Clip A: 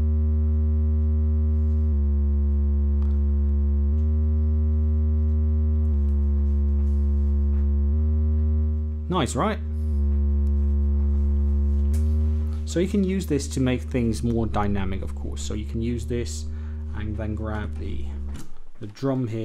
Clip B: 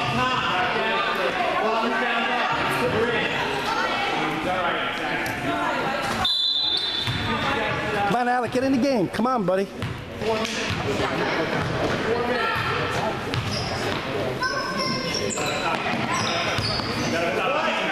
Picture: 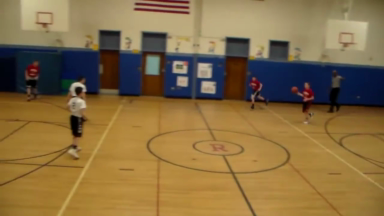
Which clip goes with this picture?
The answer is B